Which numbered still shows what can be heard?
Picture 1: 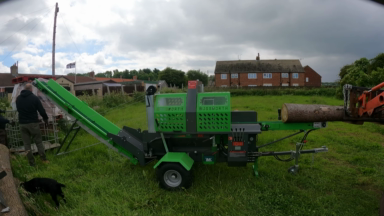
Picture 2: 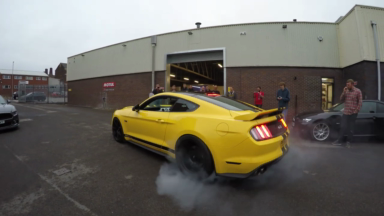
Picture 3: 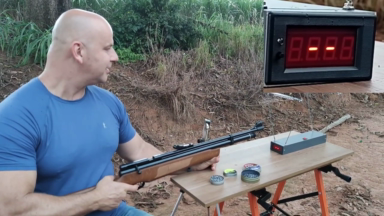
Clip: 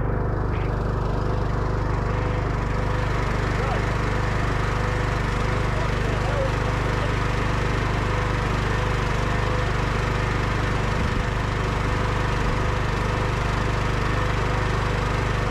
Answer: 1